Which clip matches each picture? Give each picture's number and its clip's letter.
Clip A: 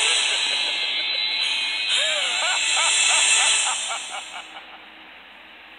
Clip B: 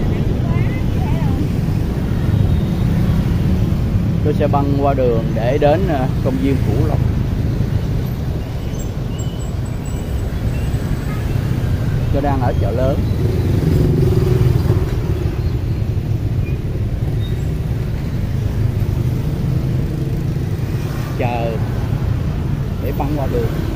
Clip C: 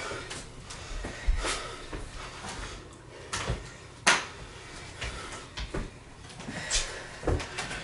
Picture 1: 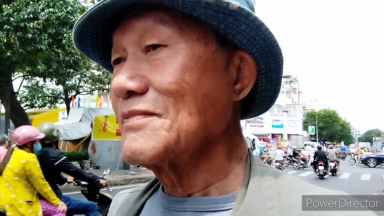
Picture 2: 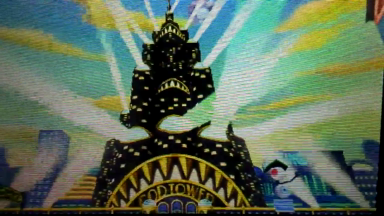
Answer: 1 B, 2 A